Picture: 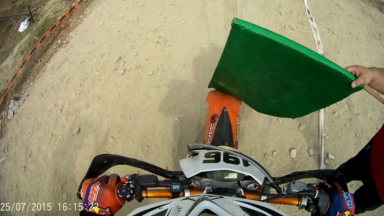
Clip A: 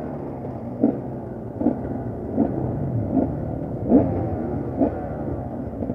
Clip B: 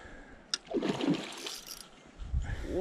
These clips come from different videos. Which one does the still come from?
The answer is A